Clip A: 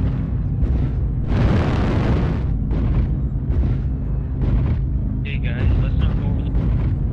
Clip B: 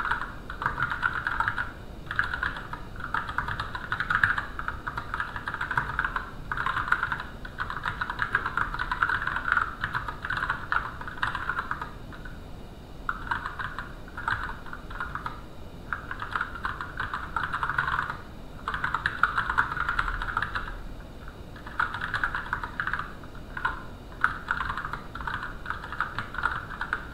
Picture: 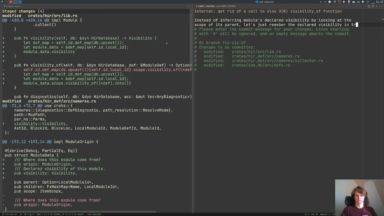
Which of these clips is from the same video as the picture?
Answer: B